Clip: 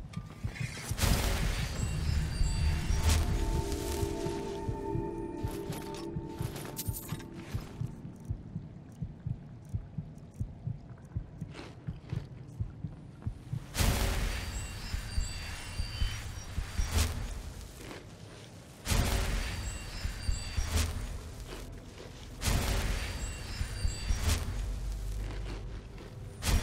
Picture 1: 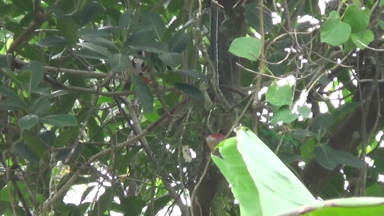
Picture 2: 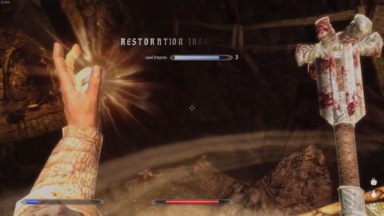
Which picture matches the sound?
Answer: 2